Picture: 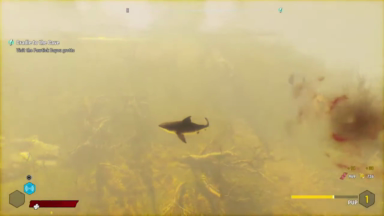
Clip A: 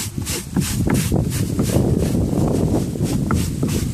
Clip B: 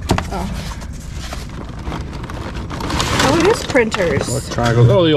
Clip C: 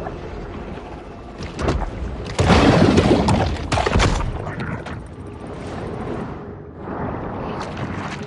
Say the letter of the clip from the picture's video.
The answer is C